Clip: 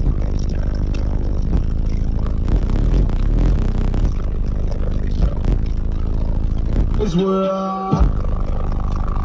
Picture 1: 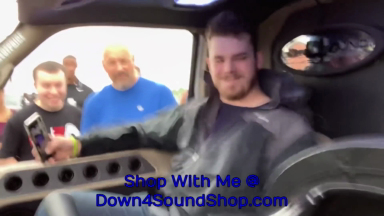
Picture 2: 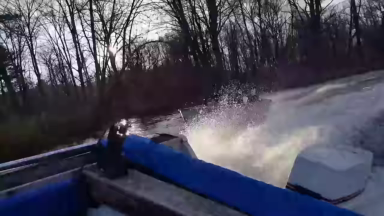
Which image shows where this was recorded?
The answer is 1